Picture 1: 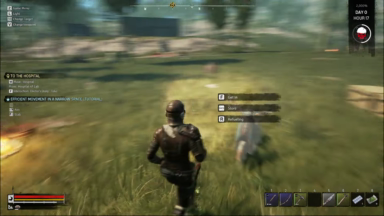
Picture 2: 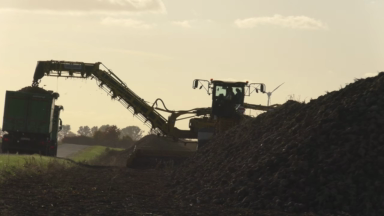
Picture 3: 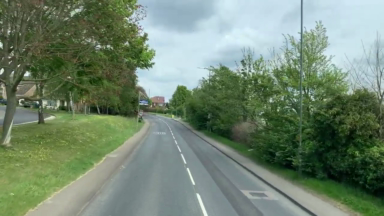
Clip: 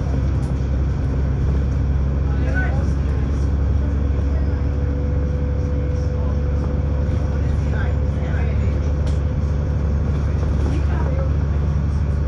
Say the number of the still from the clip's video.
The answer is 3